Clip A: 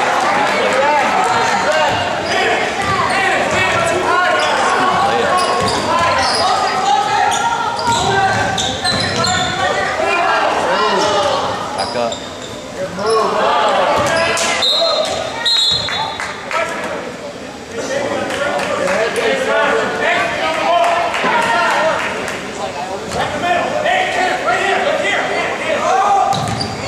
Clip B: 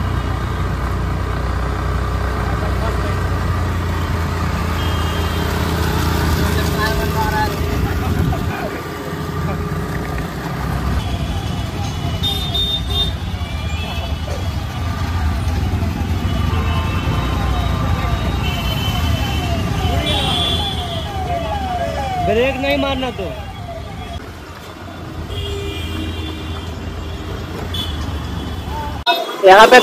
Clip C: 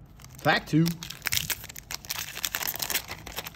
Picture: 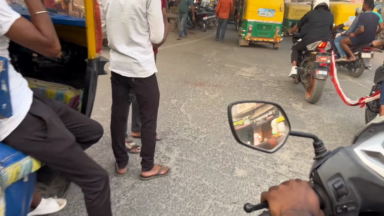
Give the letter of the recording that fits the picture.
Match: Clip B